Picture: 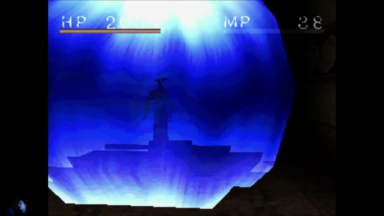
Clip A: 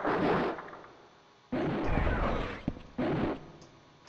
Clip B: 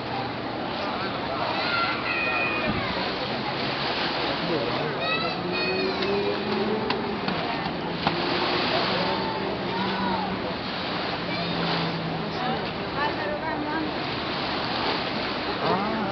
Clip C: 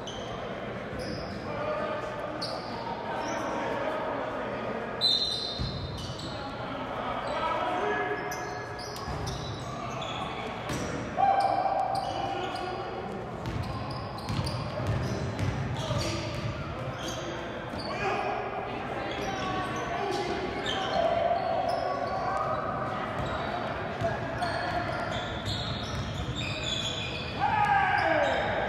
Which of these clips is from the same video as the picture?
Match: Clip A